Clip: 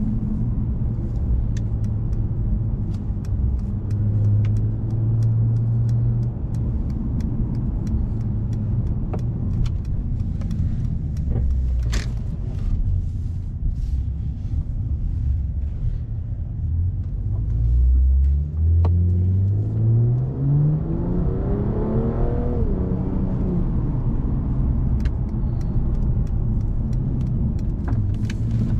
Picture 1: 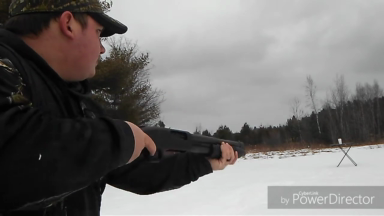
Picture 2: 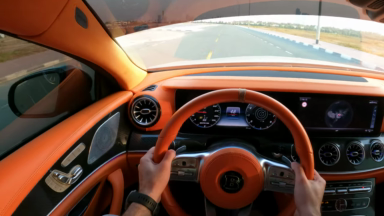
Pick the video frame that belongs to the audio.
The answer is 2